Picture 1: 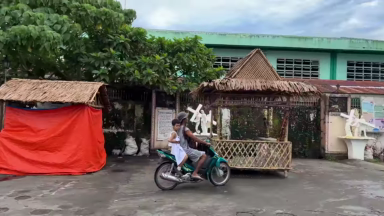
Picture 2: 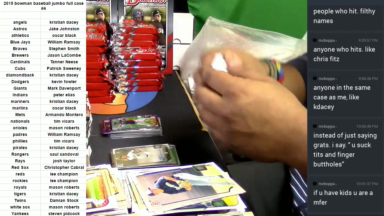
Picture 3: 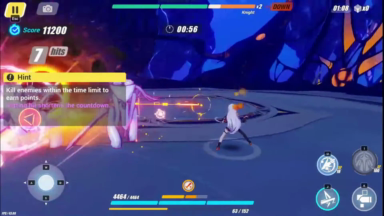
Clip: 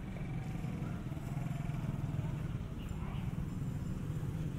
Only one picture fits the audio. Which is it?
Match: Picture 1